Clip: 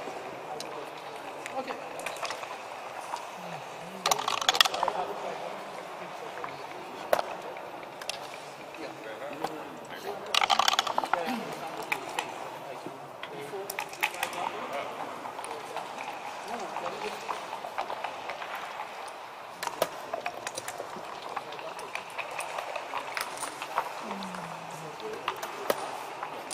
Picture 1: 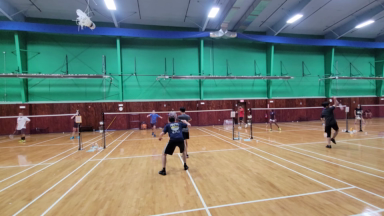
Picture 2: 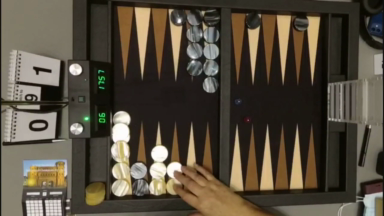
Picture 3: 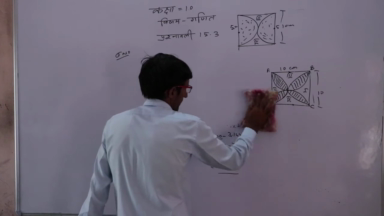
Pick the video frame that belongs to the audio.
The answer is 2